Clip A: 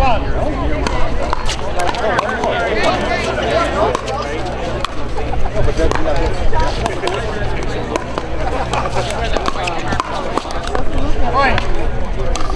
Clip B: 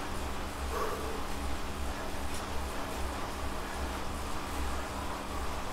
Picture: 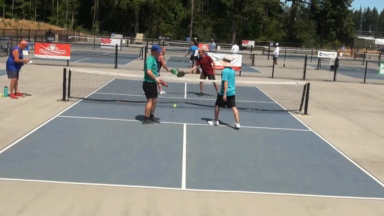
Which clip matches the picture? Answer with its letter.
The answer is A